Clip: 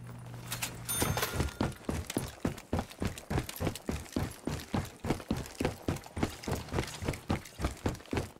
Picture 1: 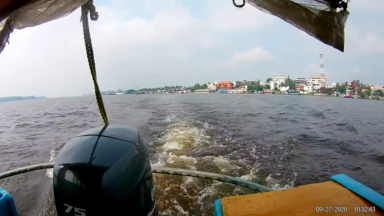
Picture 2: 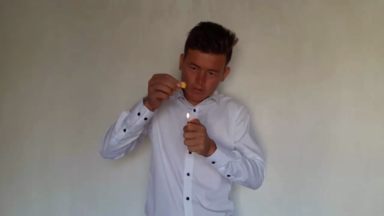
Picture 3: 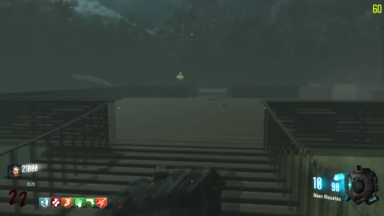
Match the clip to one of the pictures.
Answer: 3